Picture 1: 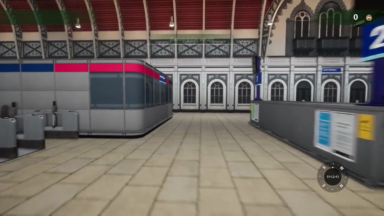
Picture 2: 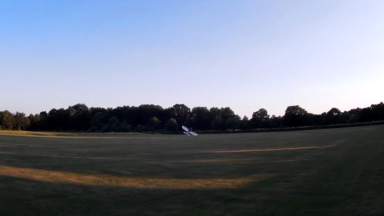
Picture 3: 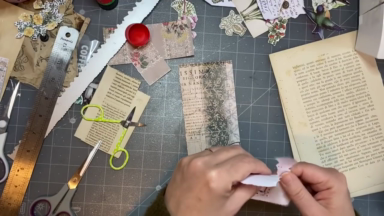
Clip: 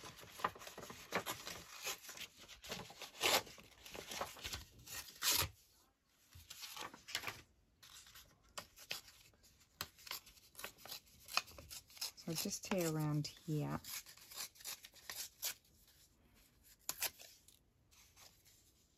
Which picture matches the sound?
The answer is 3